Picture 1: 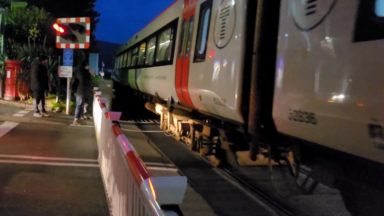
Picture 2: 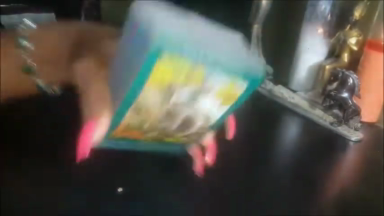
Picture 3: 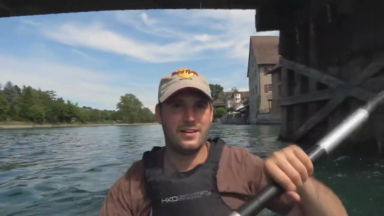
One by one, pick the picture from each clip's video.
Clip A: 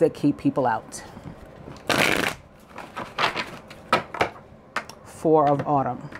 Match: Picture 2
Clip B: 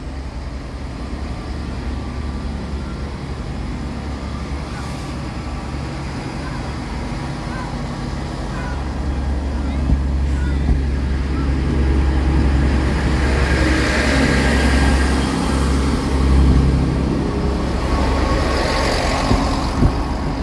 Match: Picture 1